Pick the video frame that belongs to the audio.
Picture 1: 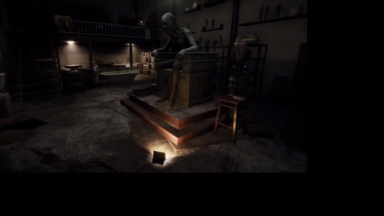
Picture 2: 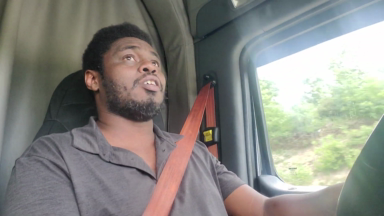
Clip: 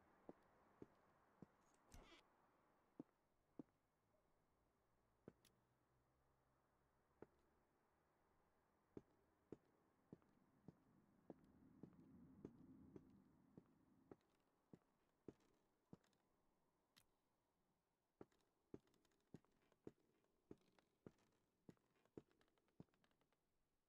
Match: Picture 1